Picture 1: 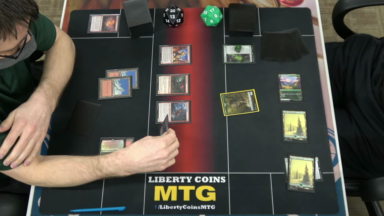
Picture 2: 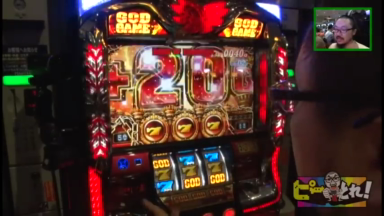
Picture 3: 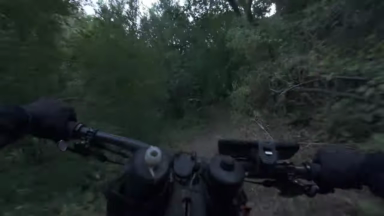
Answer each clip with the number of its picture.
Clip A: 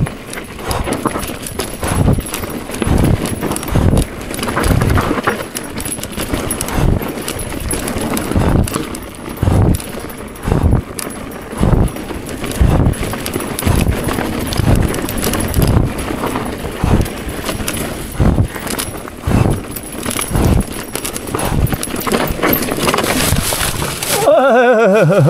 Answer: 3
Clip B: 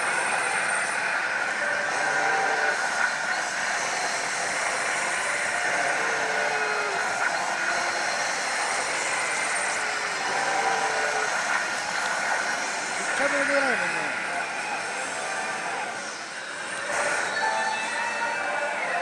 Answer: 2